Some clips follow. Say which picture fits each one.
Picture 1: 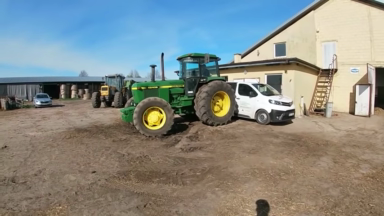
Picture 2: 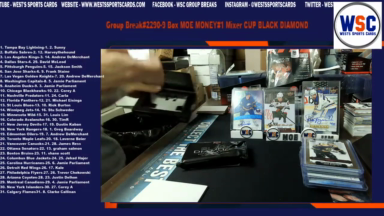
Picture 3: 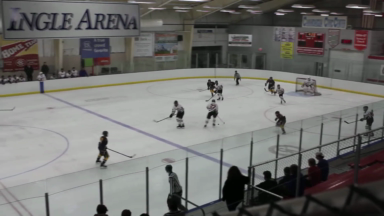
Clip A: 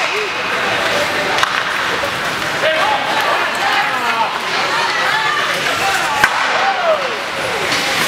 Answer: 3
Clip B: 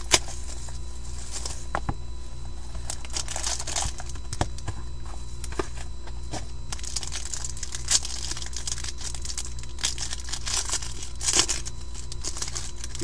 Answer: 2